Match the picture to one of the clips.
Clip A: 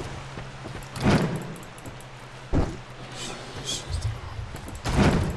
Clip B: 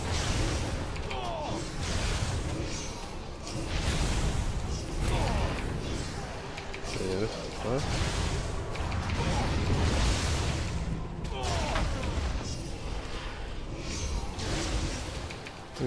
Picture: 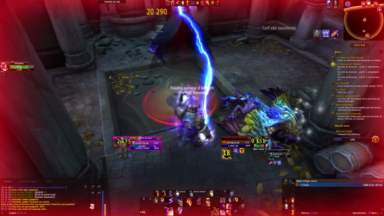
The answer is B